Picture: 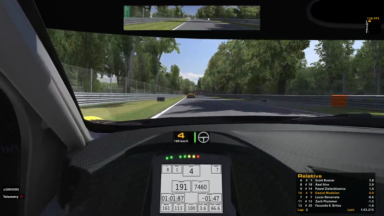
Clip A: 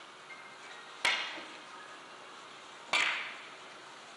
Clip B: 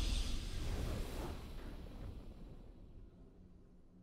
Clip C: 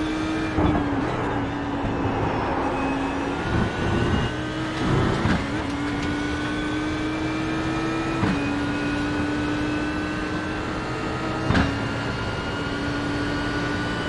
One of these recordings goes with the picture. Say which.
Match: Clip C